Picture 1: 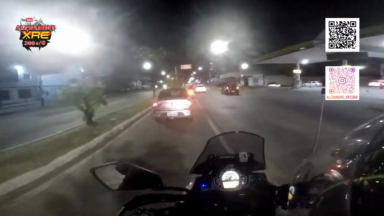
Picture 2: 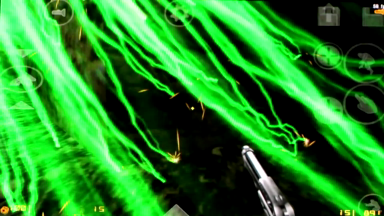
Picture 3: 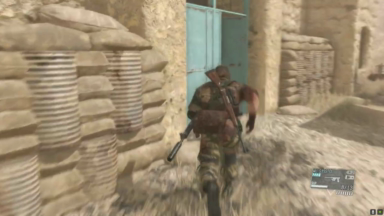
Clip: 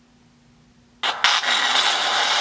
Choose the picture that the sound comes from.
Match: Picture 2